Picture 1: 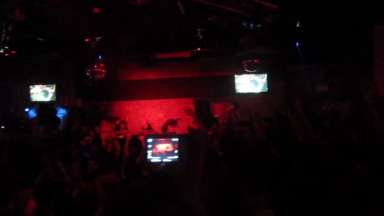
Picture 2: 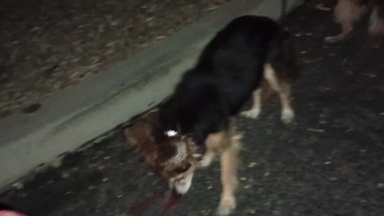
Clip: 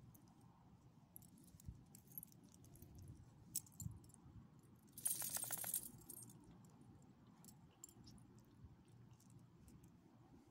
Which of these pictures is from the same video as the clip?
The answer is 2